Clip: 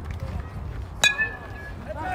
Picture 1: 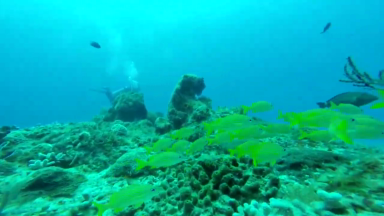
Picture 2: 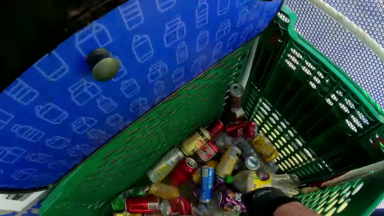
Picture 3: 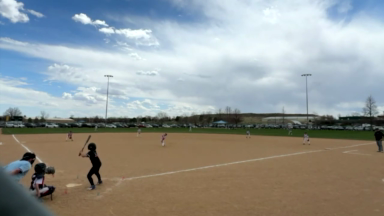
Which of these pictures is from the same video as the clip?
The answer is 3